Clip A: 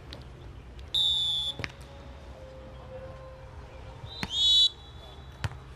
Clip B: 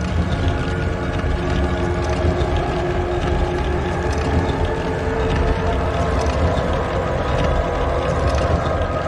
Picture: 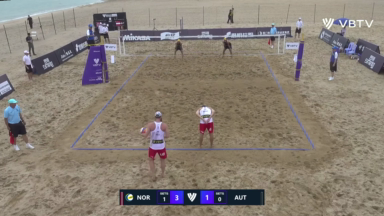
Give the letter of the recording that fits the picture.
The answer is A